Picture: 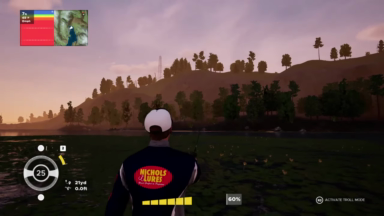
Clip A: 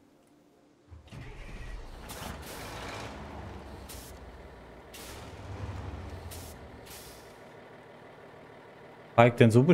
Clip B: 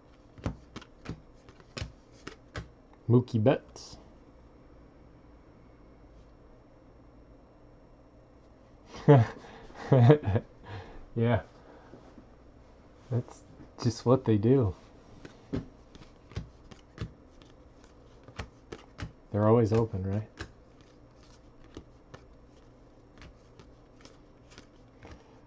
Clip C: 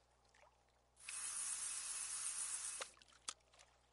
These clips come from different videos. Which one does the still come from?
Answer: C